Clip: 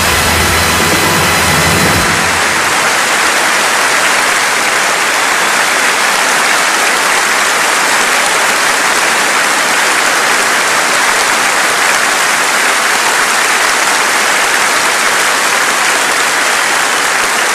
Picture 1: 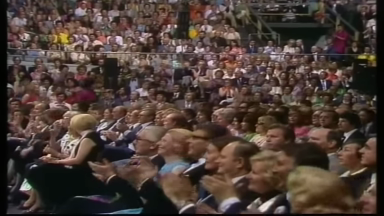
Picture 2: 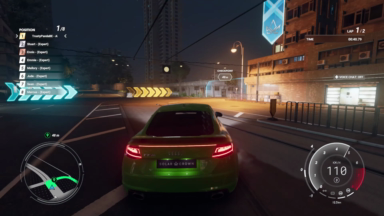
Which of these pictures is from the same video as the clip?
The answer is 1